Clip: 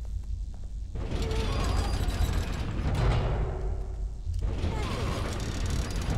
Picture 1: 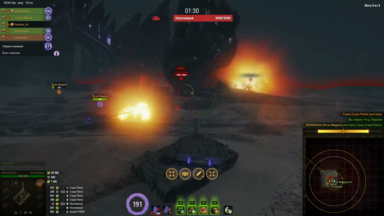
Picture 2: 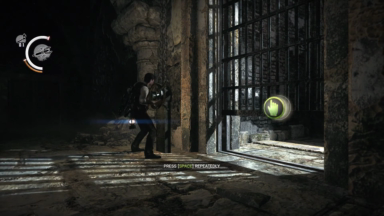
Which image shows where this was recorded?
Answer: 2